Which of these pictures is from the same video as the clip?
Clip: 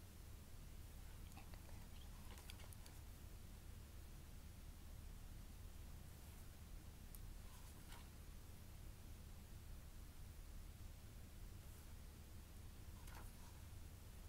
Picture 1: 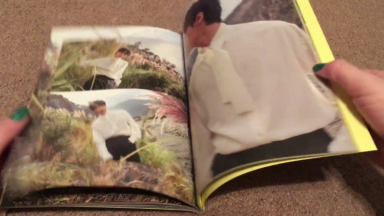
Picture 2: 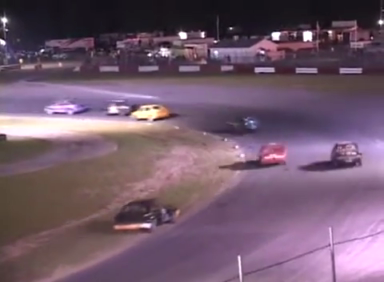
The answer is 1